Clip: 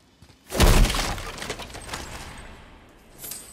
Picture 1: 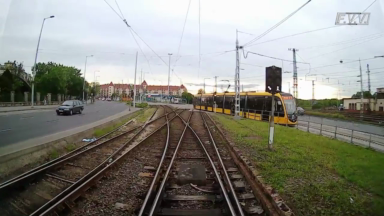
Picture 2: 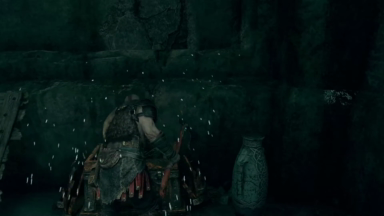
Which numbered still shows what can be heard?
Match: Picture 2